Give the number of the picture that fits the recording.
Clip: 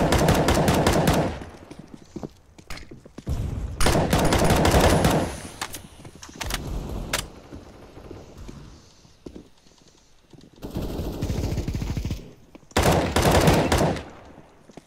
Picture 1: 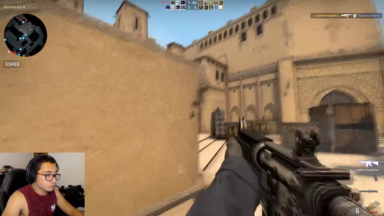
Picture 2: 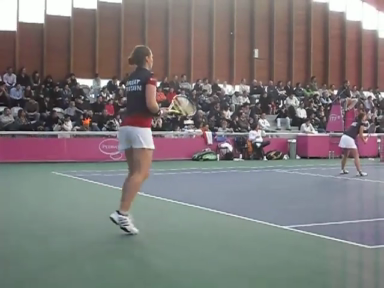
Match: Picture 1